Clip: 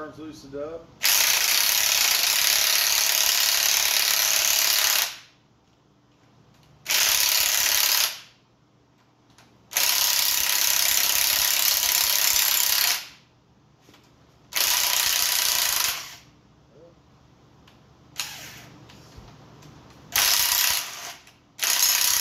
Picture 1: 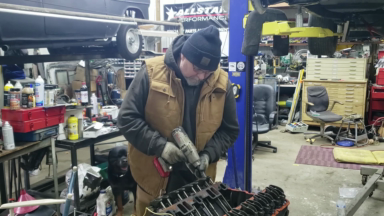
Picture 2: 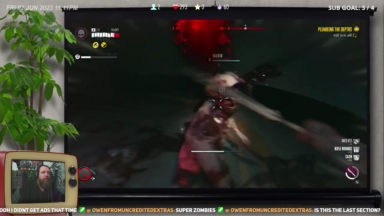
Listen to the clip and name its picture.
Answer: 1